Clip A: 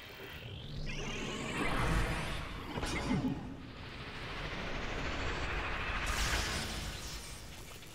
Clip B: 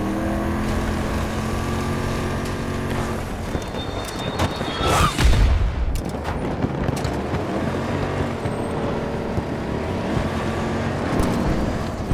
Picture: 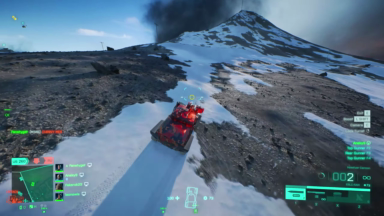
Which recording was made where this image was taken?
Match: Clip B